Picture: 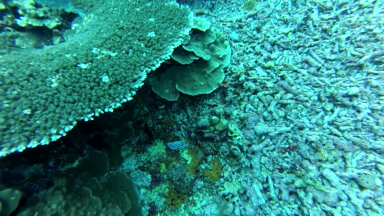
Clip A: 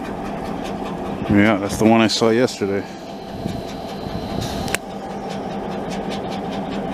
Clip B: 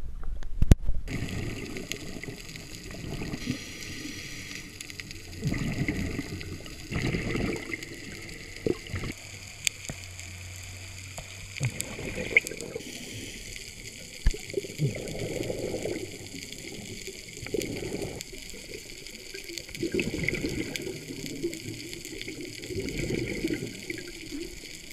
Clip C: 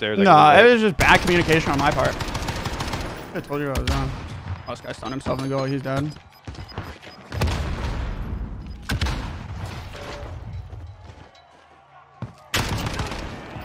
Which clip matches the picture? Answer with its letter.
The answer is B